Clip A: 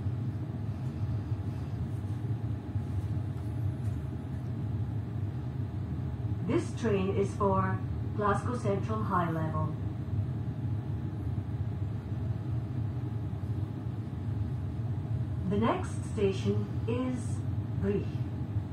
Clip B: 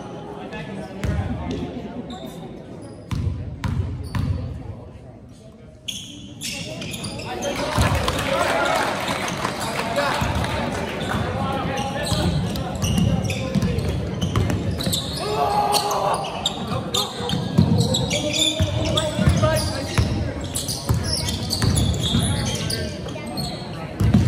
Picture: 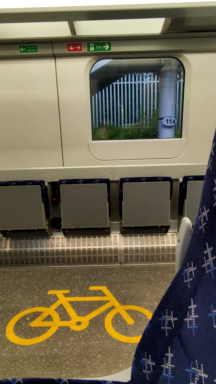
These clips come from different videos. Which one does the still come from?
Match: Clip A